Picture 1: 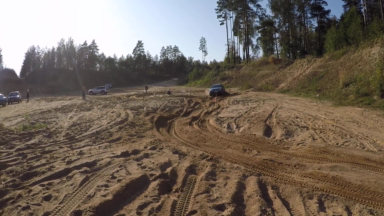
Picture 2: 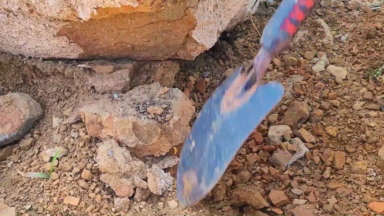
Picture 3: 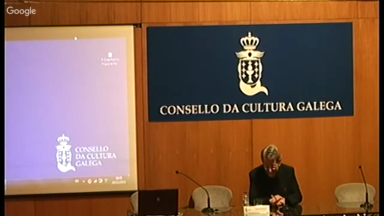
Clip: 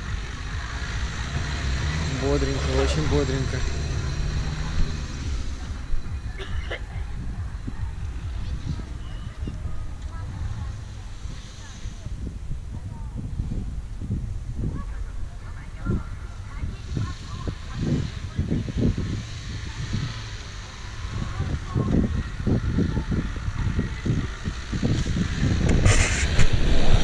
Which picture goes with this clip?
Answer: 1